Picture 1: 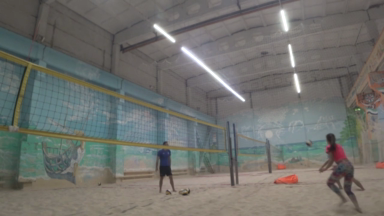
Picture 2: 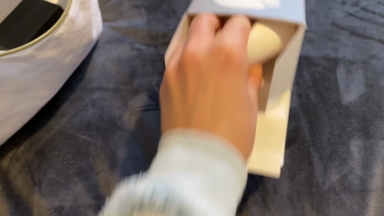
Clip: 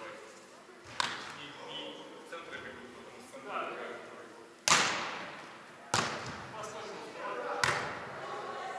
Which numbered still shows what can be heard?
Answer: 1